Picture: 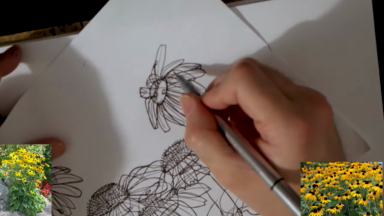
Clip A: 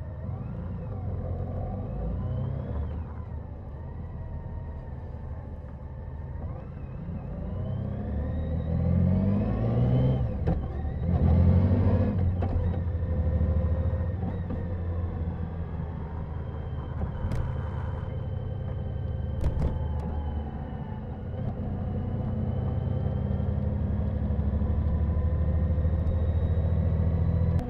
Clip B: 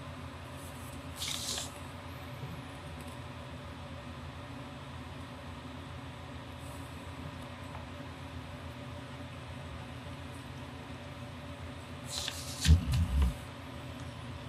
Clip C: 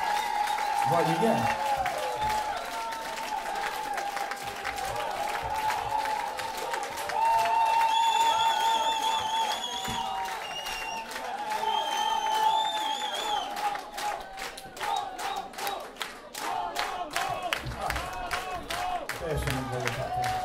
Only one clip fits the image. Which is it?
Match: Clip B